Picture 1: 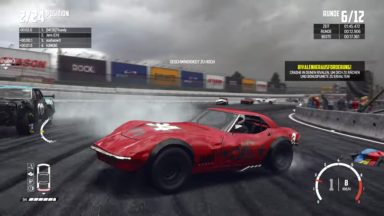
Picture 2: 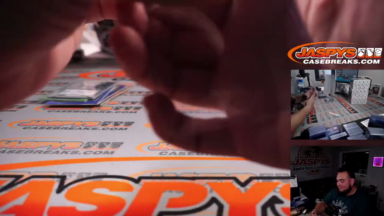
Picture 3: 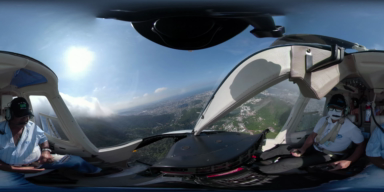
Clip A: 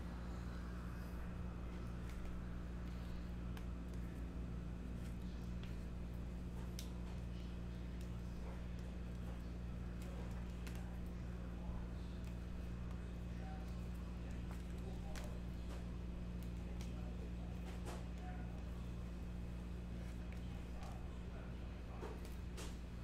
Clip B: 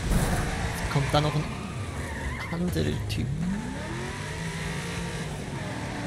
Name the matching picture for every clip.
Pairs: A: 2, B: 1